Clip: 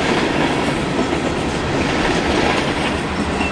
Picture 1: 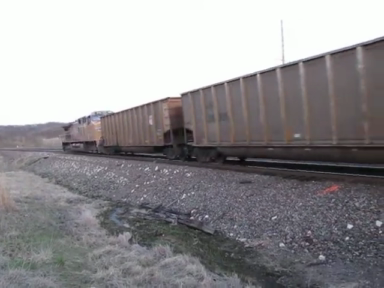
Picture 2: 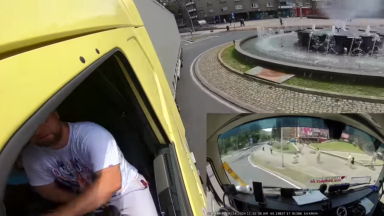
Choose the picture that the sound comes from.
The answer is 1